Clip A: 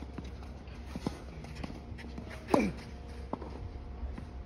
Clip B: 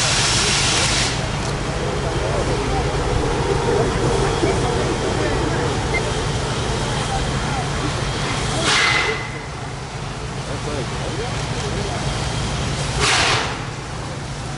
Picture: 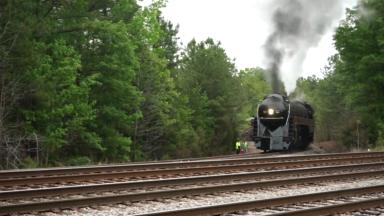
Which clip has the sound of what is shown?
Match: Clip B